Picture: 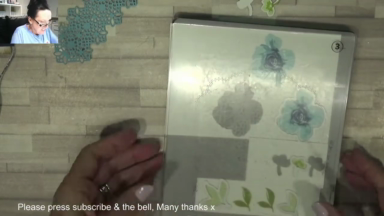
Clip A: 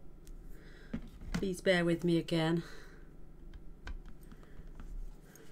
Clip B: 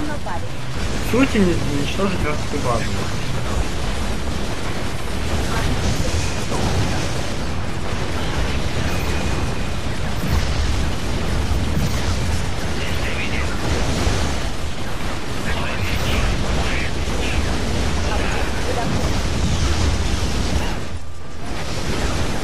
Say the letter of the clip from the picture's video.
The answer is A